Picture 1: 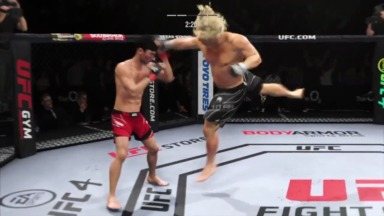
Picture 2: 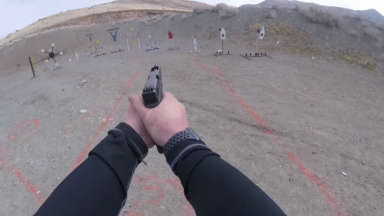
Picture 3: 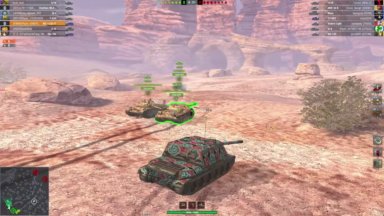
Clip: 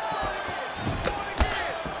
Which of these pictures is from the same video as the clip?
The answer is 1